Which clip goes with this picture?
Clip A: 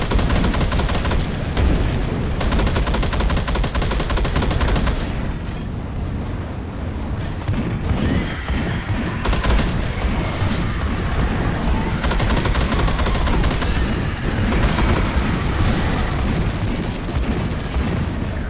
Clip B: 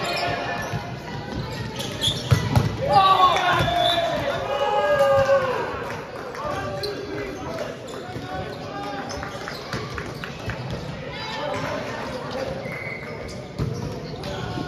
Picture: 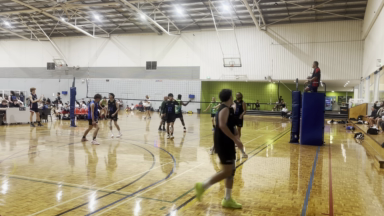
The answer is B